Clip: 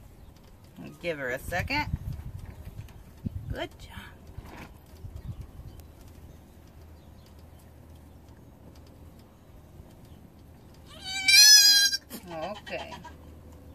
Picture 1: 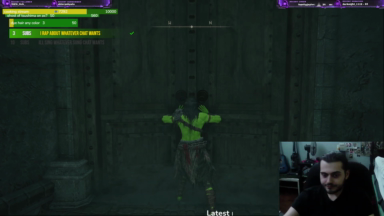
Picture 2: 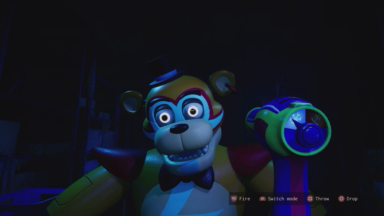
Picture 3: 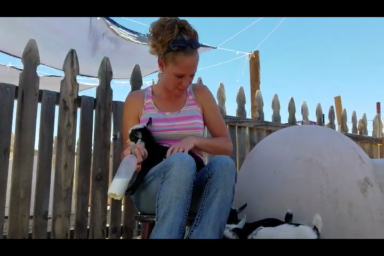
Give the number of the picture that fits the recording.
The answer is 3